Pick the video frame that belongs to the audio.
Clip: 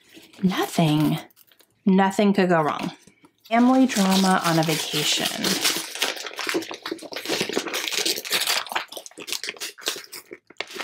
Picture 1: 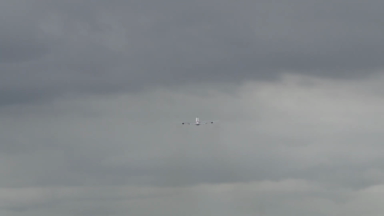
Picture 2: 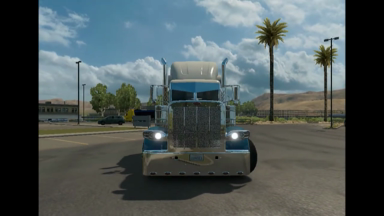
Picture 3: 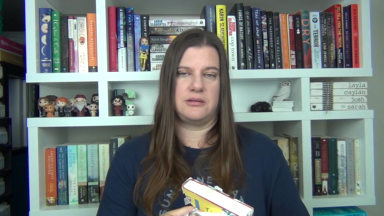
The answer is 3